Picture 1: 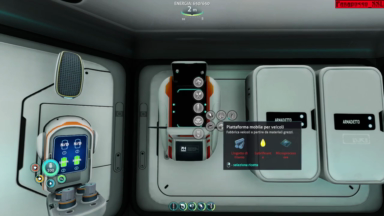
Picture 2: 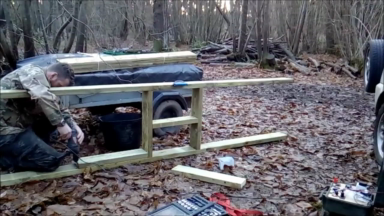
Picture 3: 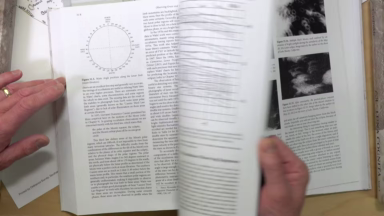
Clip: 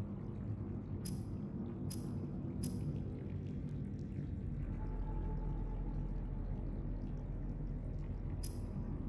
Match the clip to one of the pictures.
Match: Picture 1